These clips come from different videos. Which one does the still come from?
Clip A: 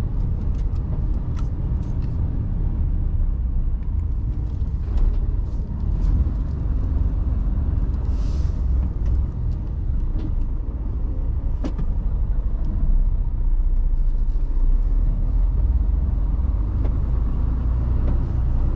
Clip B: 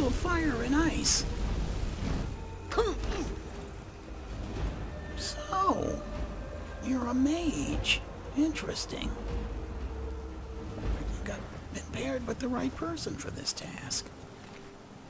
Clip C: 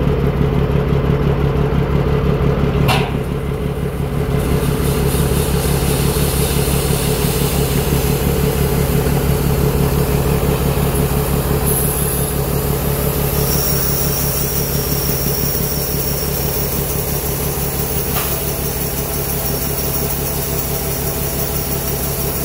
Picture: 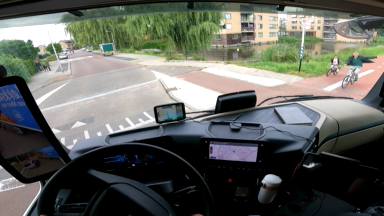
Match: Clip A